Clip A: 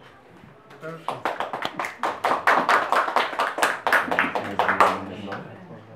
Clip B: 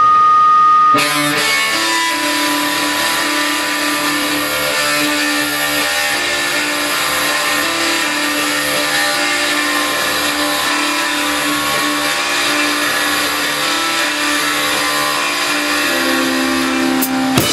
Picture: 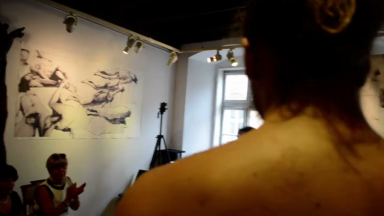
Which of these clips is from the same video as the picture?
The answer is A